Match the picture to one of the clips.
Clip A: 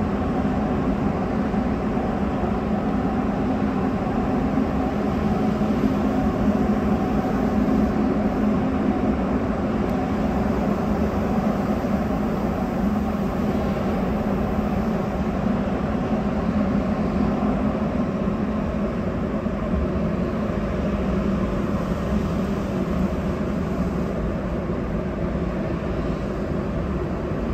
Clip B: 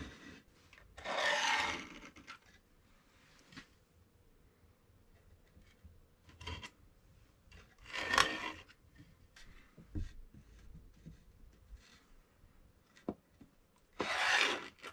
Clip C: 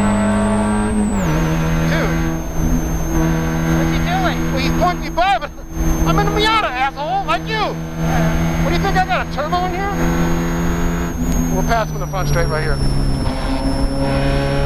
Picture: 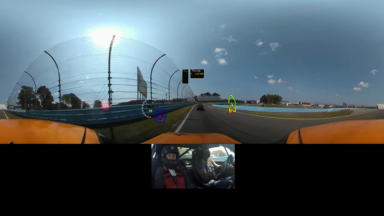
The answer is C